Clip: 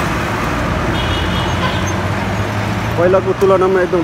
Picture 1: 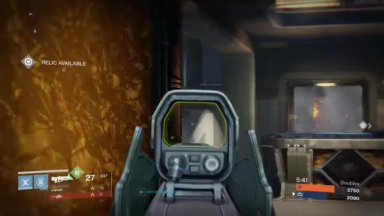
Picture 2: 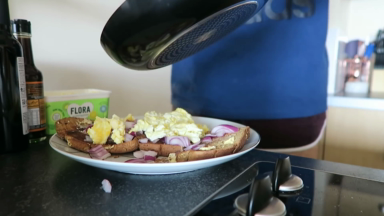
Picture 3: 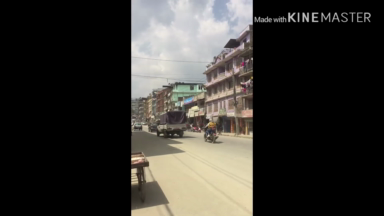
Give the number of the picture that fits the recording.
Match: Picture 3